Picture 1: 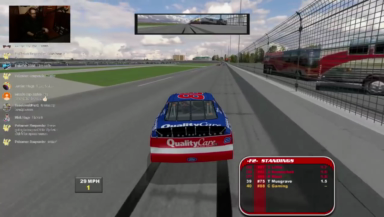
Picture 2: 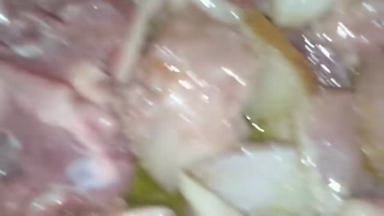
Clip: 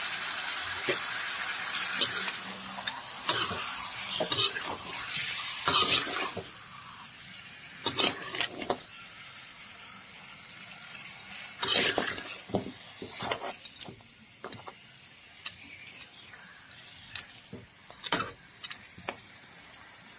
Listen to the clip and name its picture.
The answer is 2